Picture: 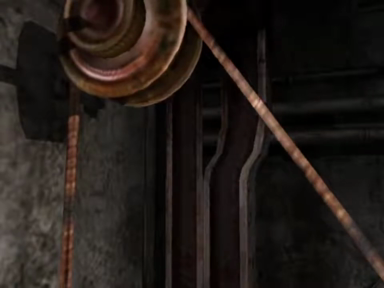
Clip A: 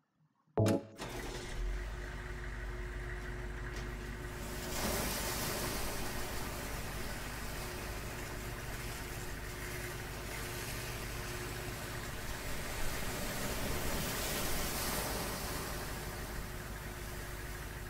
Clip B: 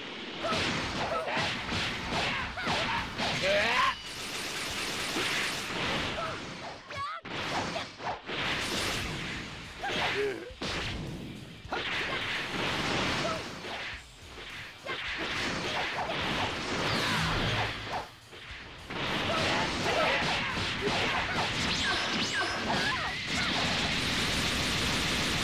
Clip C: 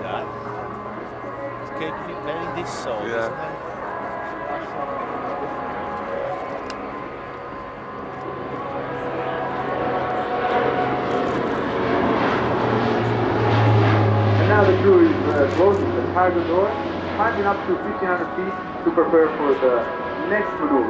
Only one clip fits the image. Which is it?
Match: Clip A